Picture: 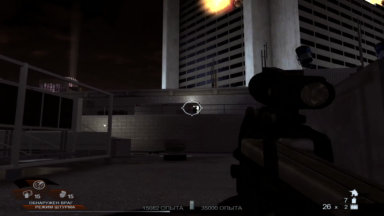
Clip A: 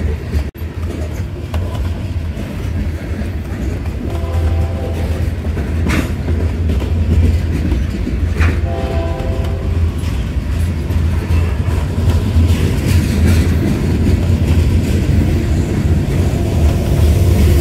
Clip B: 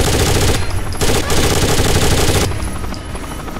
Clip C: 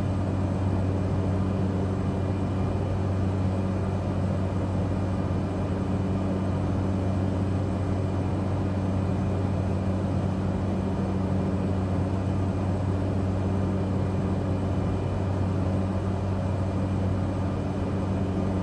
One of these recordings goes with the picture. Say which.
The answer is B